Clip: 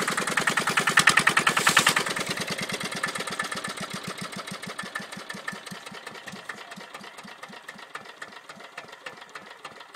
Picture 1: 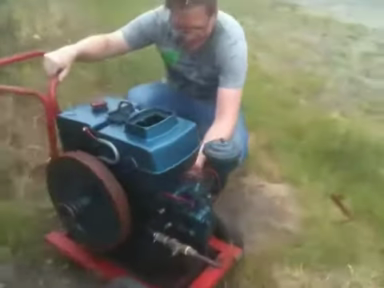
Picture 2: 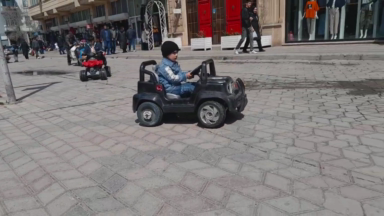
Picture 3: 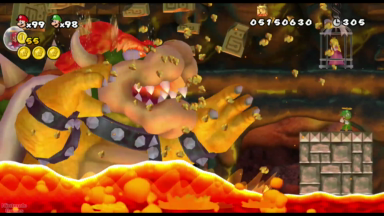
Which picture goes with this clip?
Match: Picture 1